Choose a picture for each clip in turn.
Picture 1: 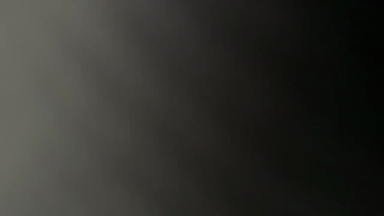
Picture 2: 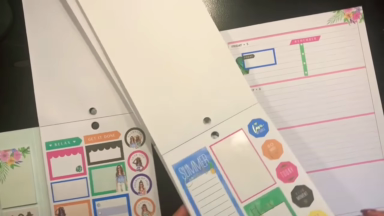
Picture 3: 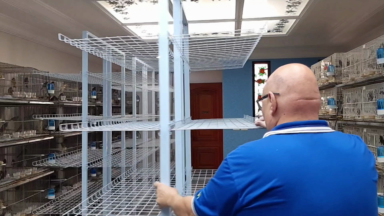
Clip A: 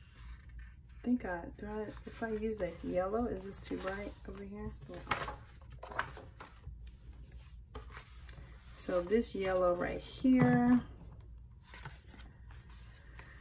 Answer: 2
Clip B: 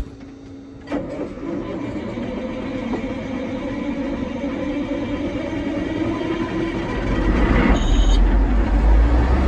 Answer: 1